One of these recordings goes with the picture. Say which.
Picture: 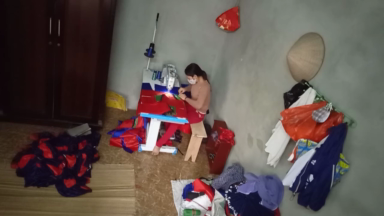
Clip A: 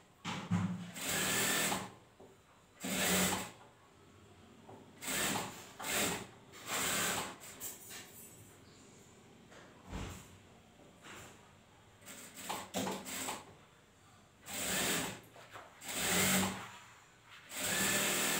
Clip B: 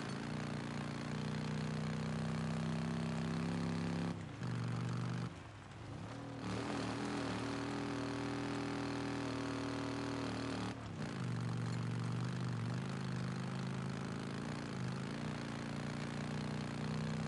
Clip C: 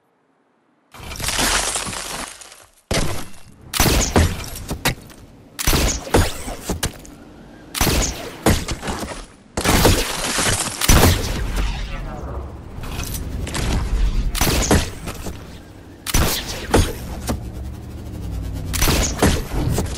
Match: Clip A